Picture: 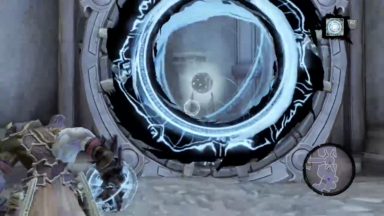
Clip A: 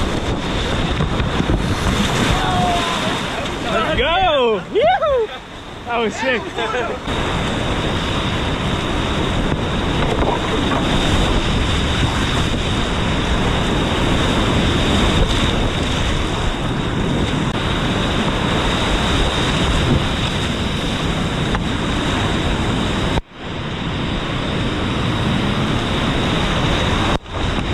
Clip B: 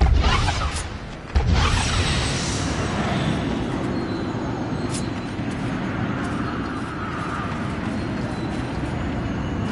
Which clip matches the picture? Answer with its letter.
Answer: B